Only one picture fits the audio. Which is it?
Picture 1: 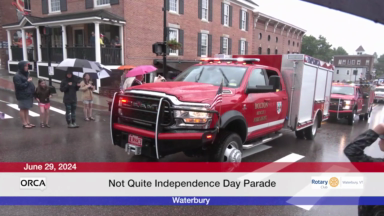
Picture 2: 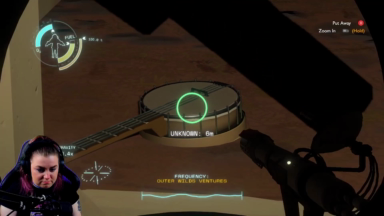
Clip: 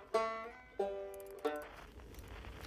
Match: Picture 2